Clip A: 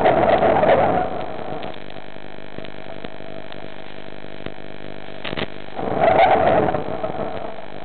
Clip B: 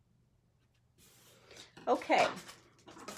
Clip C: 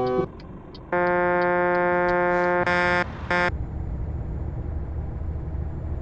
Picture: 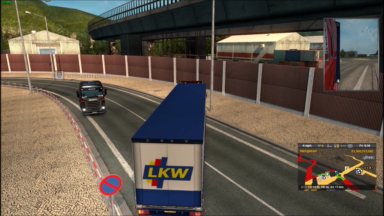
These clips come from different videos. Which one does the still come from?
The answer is C